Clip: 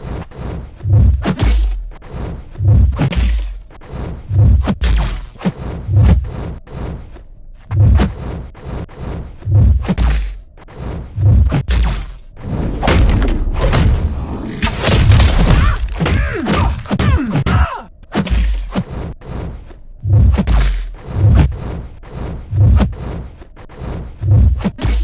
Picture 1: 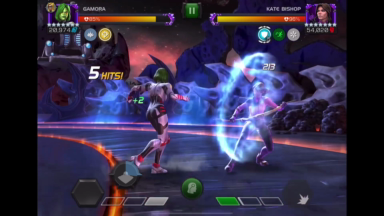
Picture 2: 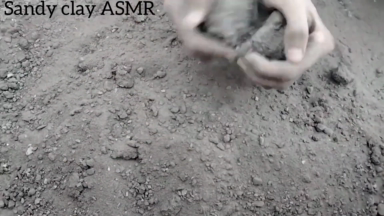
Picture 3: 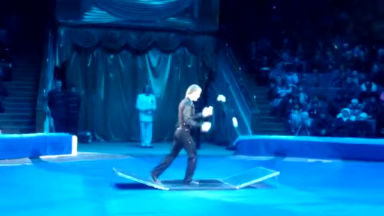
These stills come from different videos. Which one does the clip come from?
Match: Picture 1